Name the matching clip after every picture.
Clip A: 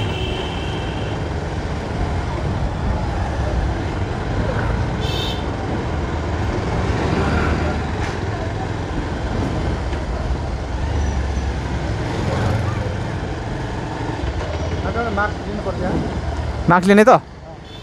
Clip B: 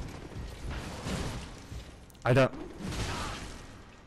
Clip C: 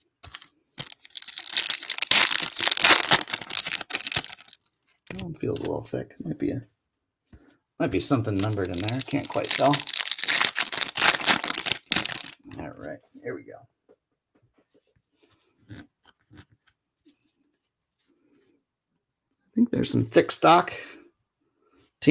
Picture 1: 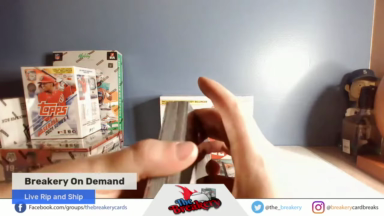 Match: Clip C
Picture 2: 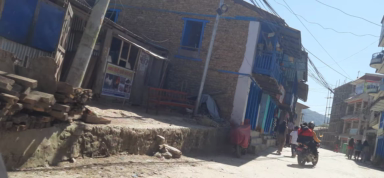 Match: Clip A